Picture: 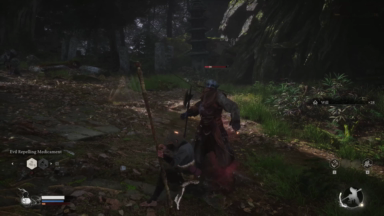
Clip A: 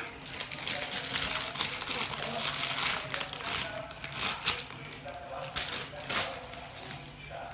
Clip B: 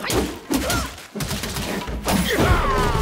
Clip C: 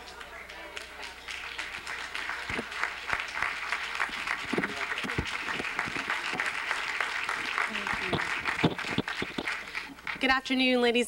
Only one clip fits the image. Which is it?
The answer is B